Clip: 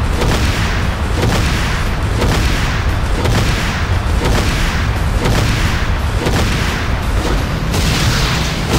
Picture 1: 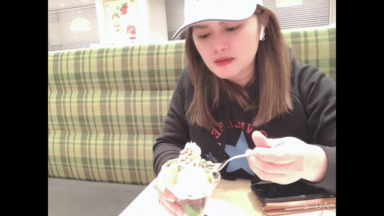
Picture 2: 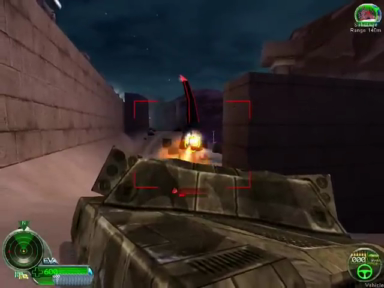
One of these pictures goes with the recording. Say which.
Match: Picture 2